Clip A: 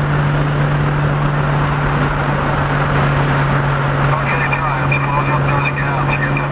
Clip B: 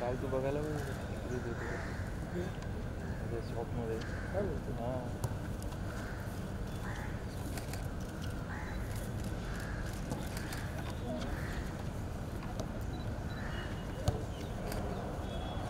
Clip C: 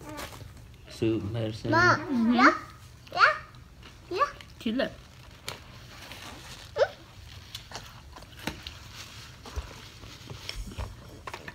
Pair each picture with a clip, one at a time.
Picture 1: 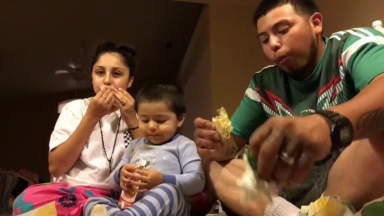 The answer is C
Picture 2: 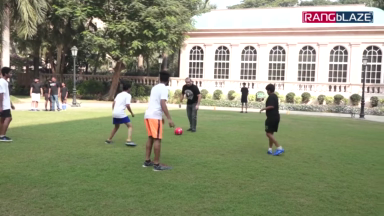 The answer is B